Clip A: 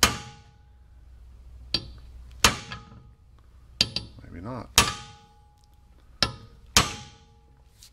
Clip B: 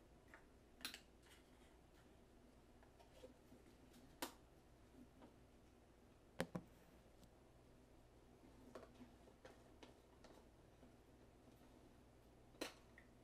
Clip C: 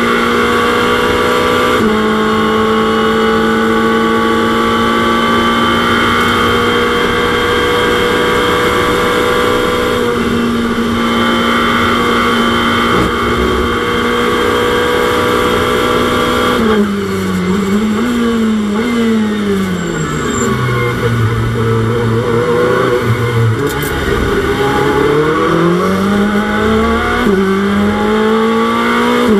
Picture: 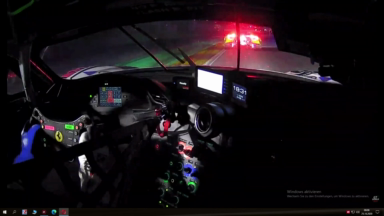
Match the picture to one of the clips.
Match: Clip C